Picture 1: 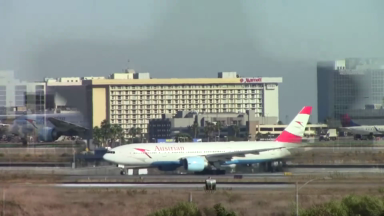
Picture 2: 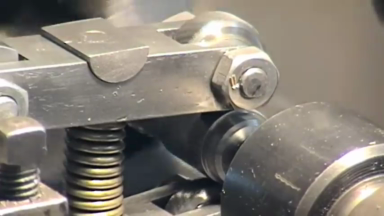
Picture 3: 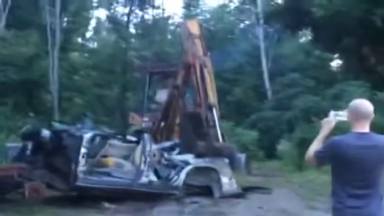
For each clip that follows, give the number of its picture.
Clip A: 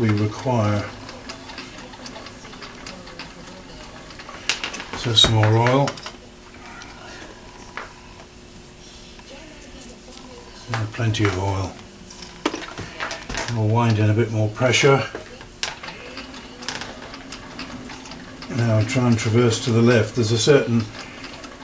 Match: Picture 2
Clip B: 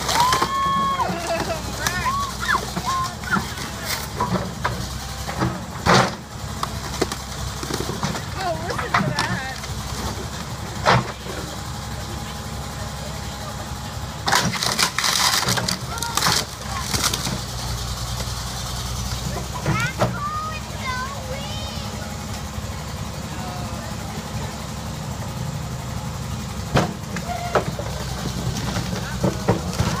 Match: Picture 3